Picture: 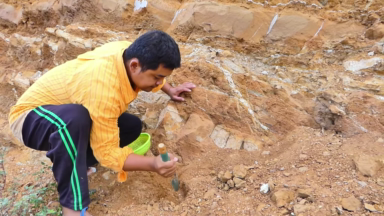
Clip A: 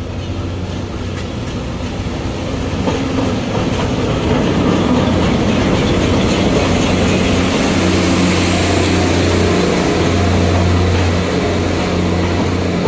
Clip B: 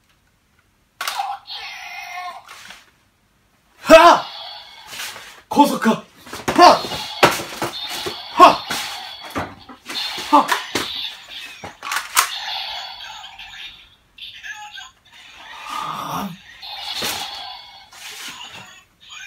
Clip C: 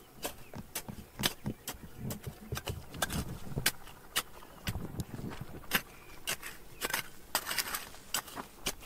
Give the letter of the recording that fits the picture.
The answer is C